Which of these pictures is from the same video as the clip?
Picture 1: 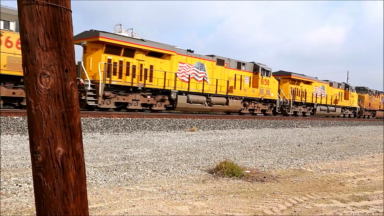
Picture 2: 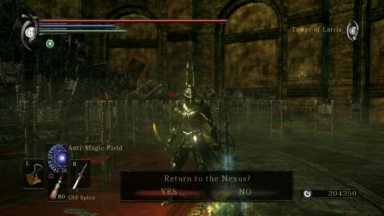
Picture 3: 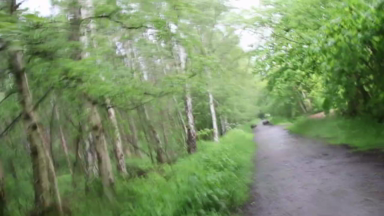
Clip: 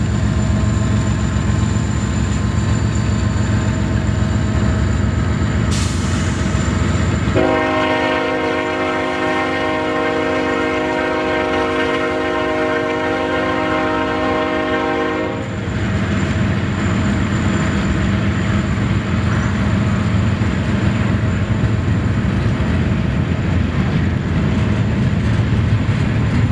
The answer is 1